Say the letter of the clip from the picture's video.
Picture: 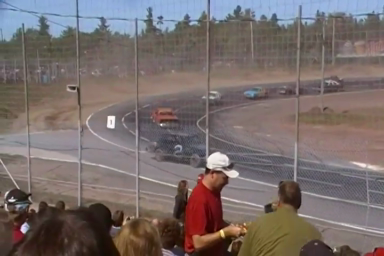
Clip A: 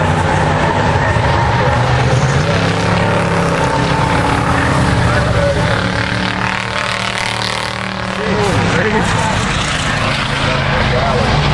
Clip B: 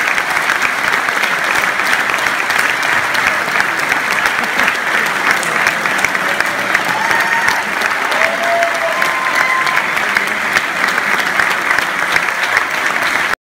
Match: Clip A